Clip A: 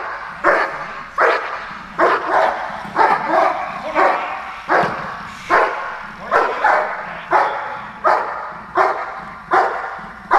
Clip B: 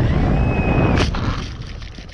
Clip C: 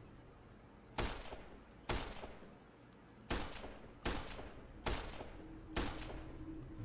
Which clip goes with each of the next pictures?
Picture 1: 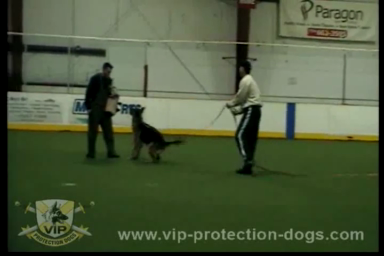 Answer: A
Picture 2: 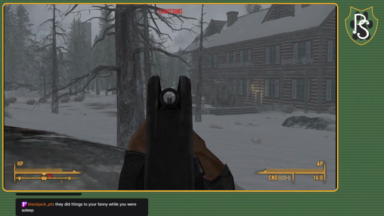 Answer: C